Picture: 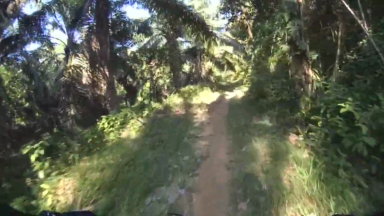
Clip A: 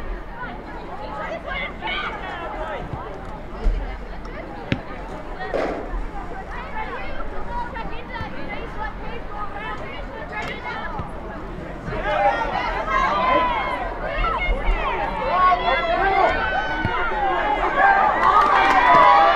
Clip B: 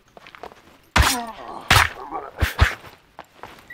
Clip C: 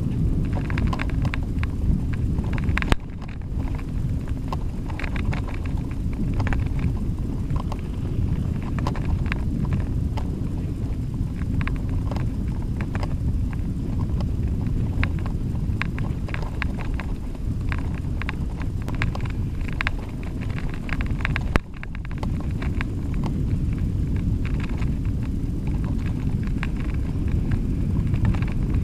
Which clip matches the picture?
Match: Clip C